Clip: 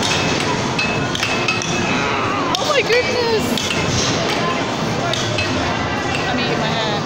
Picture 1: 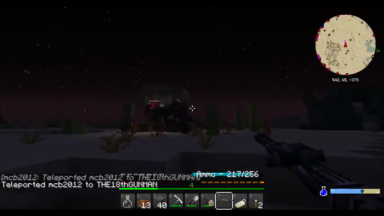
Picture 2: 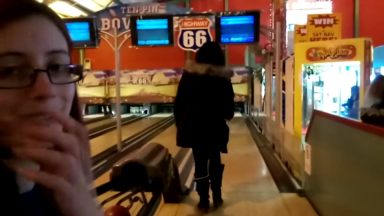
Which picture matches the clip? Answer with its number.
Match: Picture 2